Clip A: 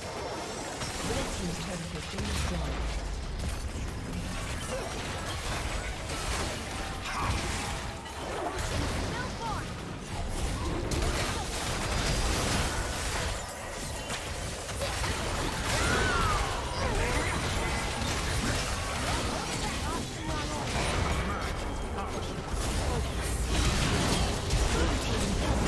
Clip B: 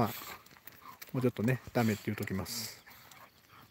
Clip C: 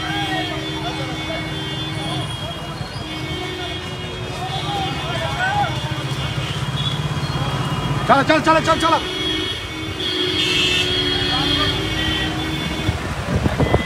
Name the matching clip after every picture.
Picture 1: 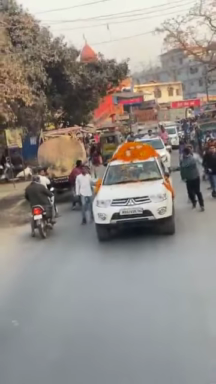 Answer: C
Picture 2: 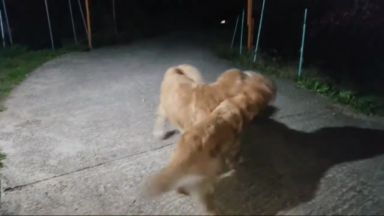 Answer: B